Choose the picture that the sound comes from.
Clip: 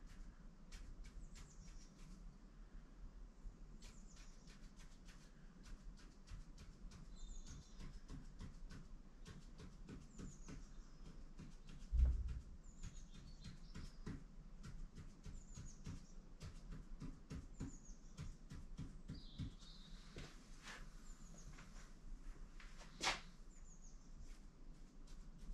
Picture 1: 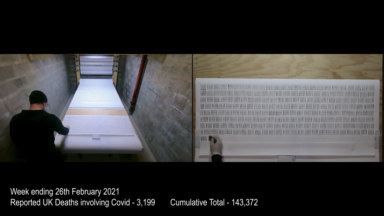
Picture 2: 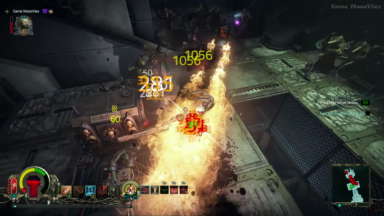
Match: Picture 1